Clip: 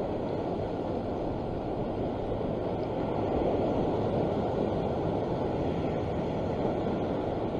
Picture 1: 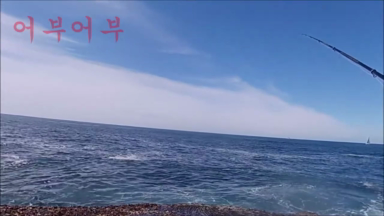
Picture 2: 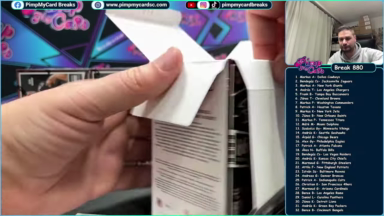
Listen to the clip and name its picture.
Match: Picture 1